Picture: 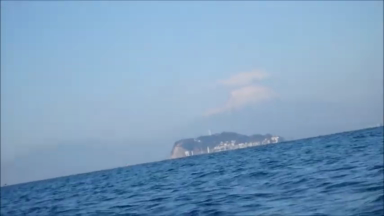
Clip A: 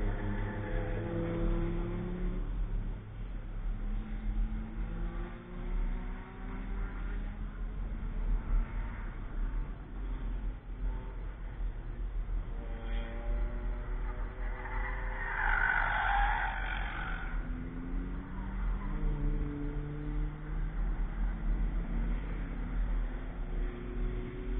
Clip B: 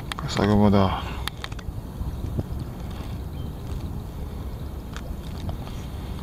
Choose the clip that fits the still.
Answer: B